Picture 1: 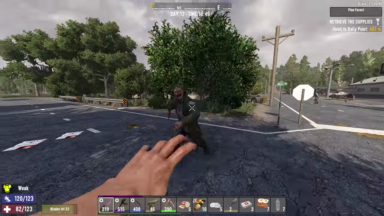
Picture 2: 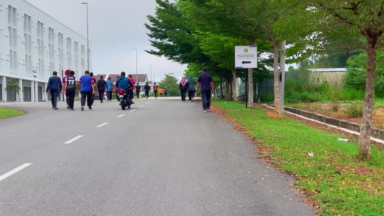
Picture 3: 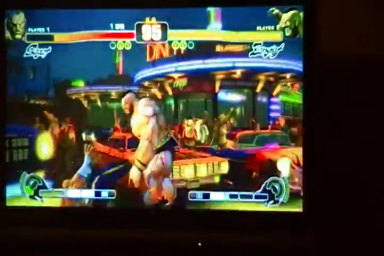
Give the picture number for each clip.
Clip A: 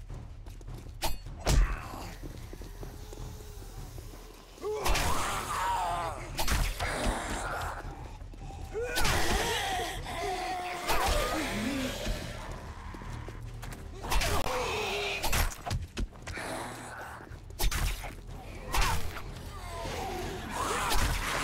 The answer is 1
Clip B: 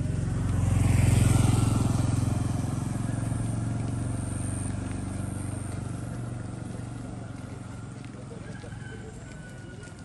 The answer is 2